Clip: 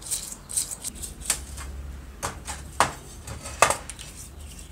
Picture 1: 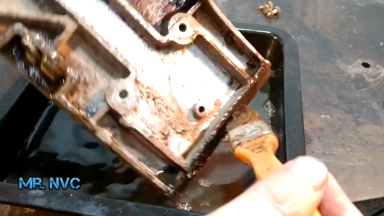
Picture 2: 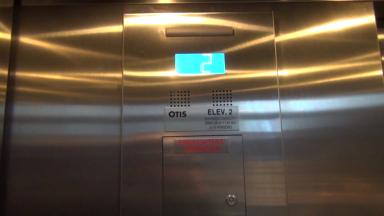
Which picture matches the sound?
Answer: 1